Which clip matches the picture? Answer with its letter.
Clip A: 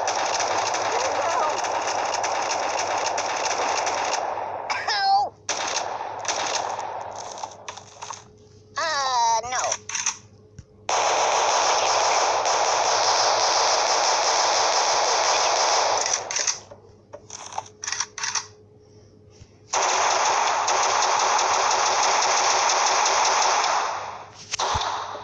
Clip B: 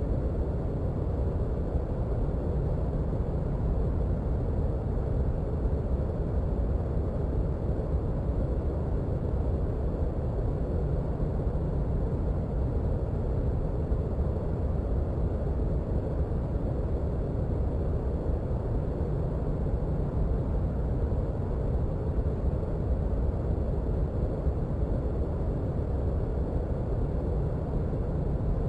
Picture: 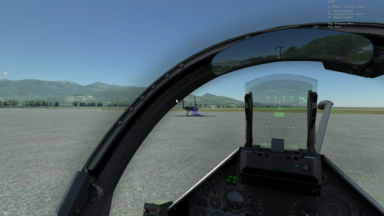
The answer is B